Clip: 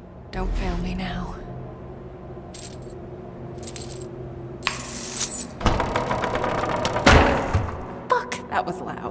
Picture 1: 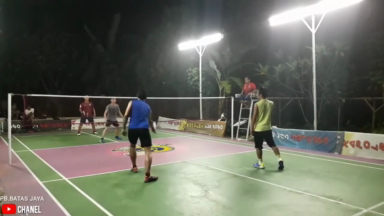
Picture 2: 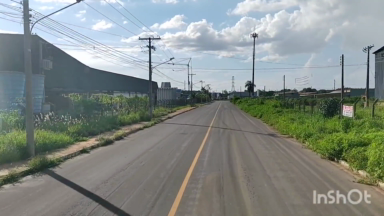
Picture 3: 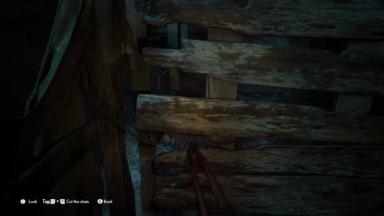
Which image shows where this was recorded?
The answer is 3